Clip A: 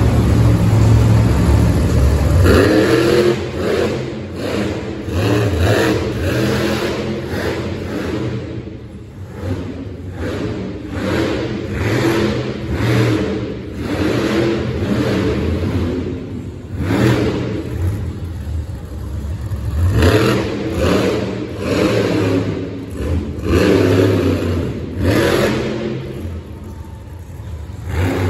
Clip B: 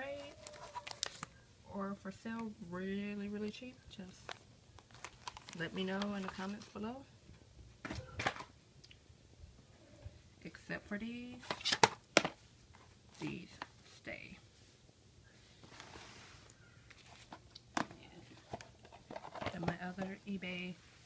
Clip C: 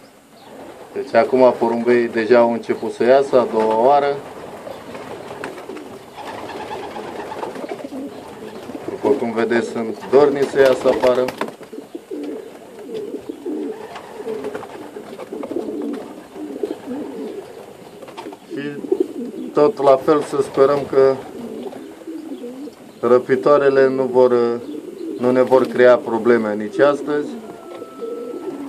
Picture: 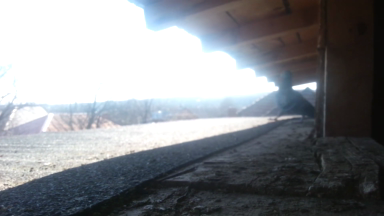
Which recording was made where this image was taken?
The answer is C